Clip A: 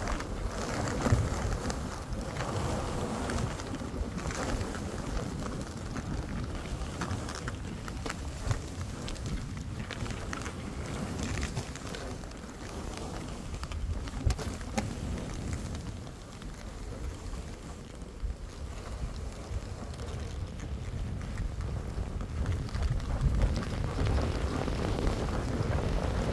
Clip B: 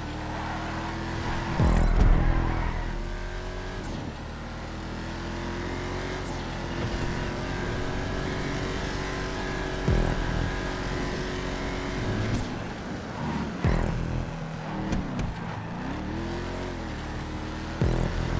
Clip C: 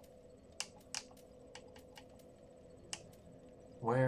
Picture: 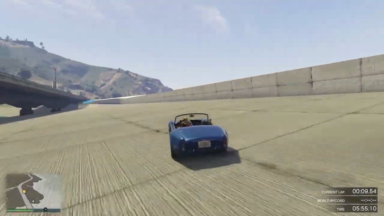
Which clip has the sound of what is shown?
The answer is B